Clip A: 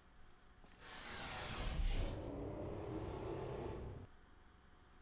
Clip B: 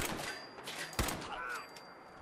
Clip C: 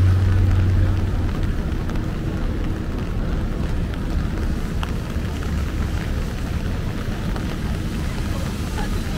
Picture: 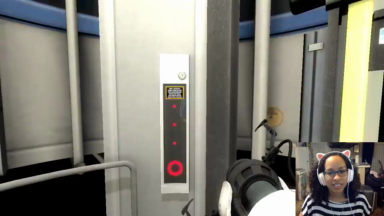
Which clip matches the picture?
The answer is A